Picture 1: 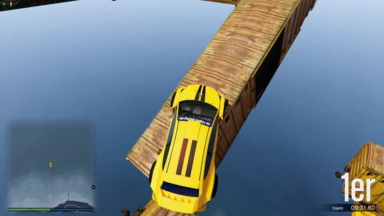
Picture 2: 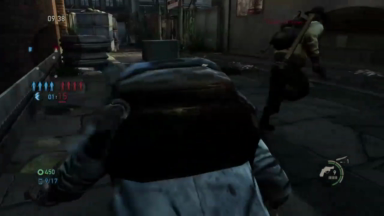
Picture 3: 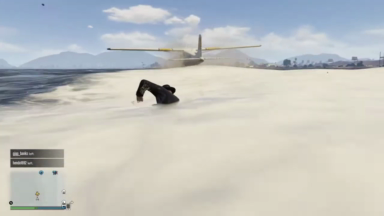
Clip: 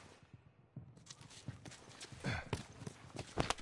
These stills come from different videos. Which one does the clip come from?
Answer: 2